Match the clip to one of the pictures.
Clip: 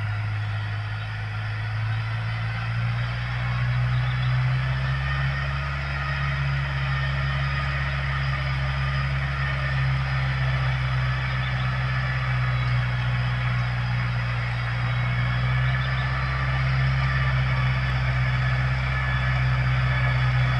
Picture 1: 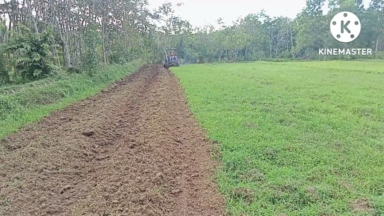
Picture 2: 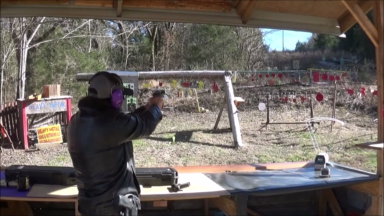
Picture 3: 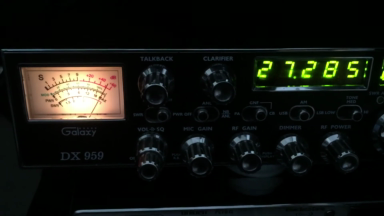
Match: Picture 1